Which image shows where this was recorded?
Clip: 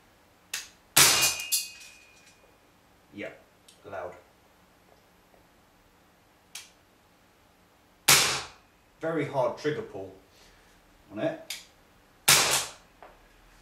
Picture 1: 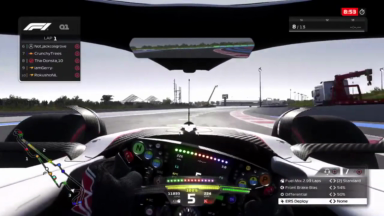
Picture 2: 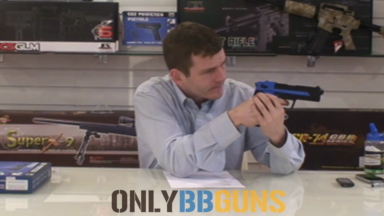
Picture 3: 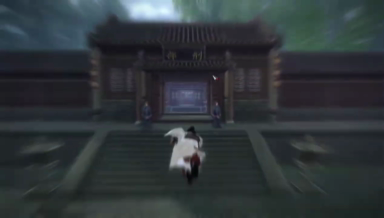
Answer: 2